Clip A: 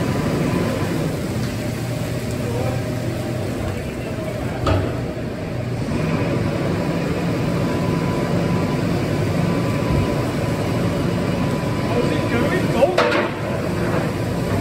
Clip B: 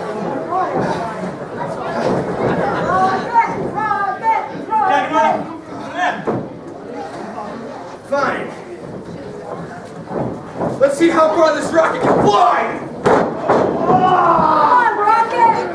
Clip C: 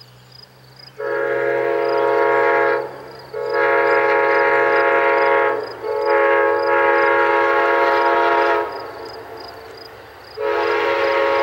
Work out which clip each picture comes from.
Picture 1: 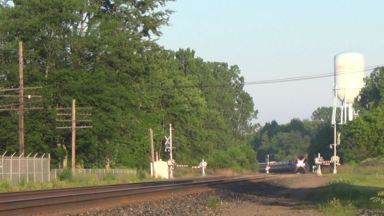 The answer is C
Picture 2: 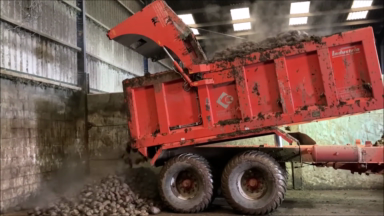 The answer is A